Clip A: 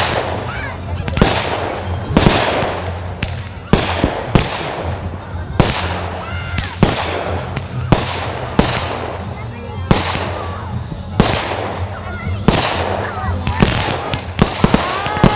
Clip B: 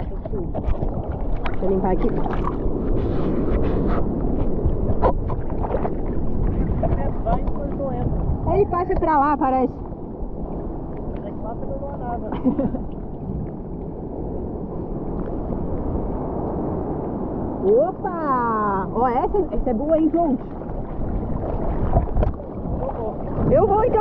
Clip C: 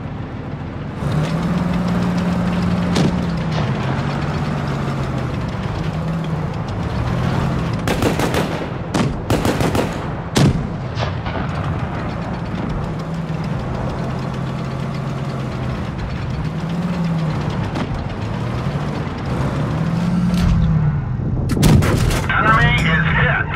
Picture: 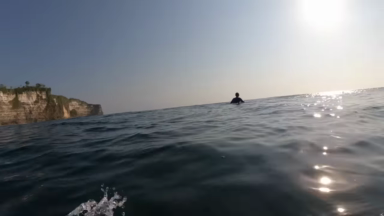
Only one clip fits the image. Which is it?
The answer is B